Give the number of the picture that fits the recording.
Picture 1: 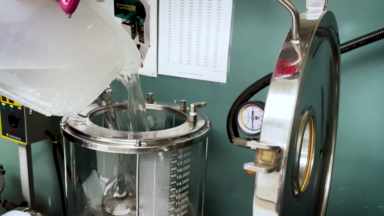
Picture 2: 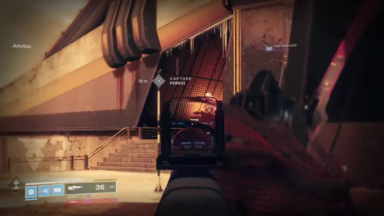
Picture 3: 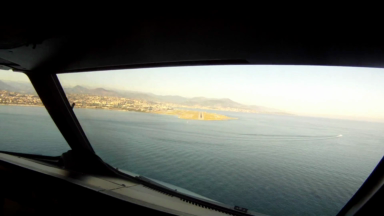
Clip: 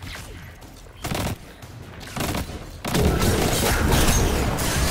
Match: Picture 2